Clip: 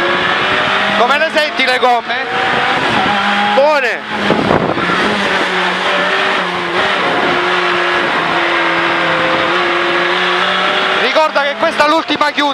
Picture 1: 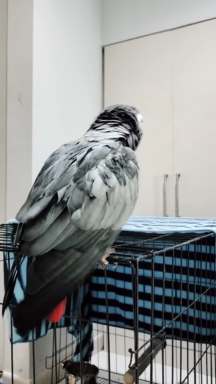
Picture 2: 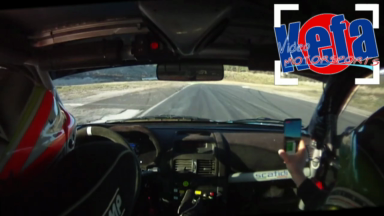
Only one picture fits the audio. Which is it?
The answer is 2